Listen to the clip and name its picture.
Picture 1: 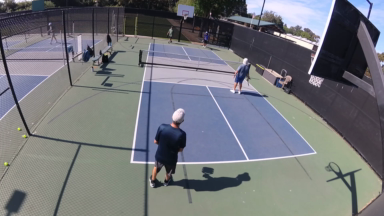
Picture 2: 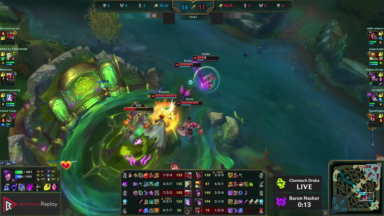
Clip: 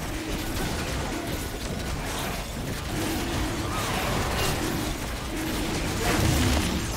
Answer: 2